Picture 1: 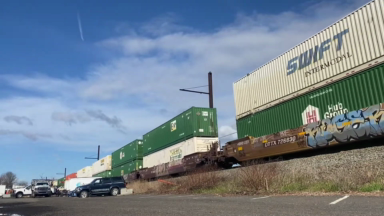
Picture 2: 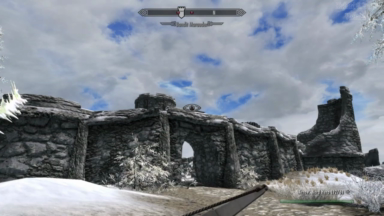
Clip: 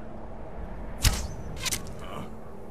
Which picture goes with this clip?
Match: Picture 2